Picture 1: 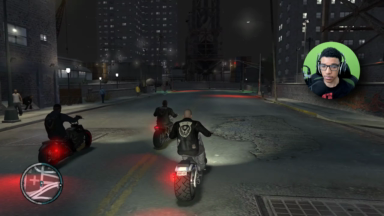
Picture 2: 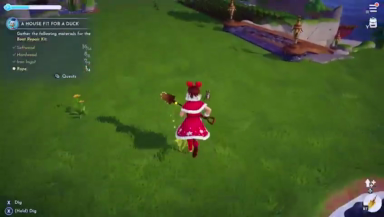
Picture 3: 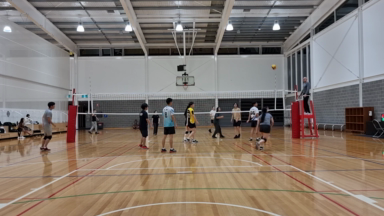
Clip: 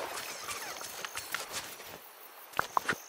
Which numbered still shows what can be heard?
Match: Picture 2